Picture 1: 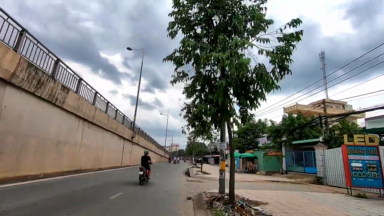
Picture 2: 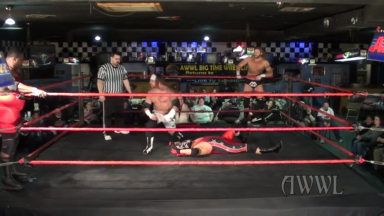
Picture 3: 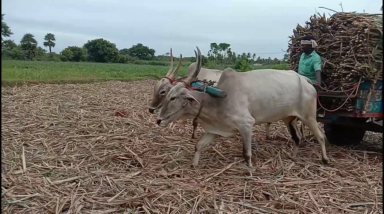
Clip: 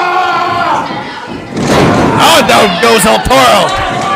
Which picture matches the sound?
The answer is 2